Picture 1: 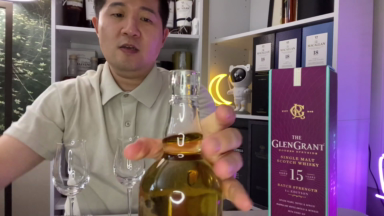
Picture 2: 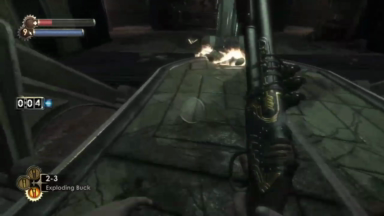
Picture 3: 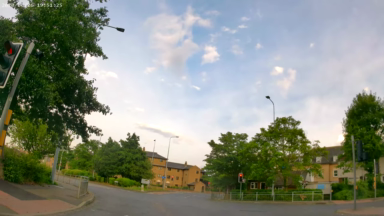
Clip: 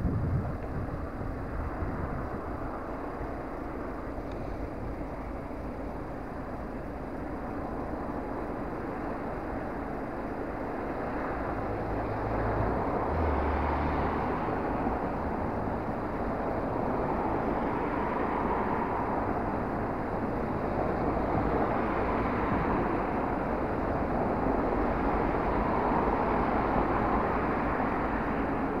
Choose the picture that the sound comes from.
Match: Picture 3